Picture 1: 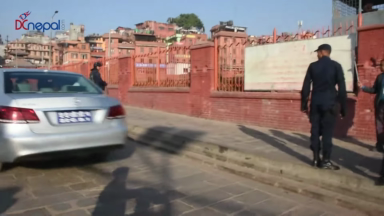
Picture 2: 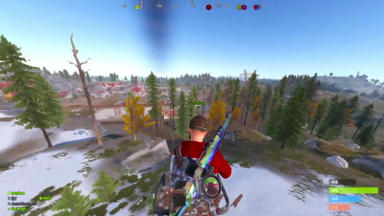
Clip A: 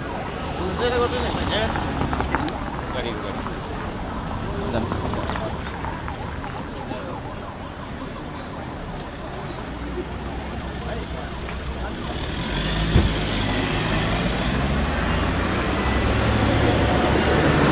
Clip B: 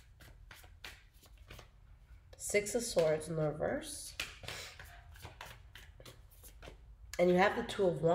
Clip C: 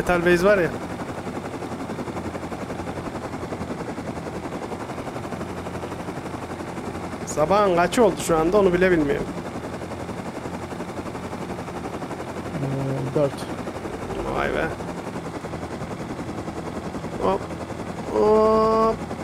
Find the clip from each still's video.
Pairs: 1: A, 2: C